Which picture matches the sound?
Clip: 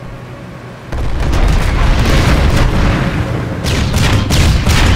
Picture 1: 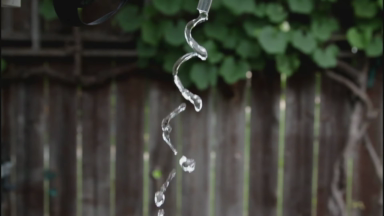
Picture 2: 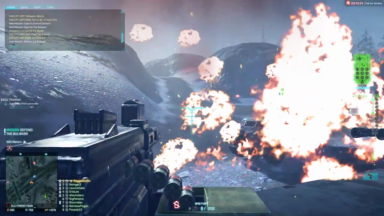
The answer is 2